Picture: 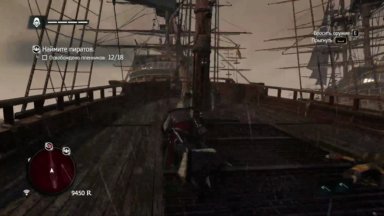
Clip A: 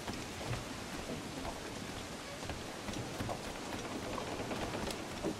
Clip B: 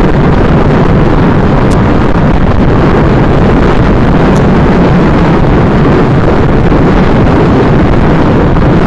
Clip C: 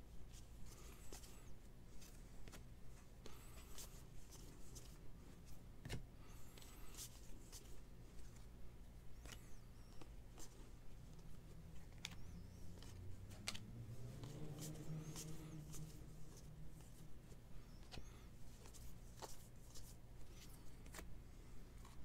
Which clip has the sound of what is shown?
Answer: A